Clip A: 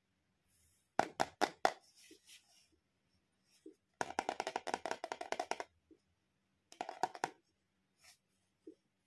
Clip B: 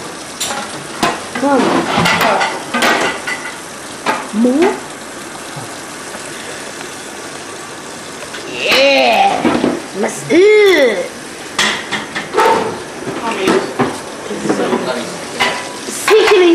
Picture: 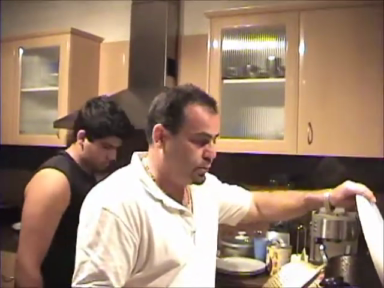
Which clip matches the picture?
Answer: B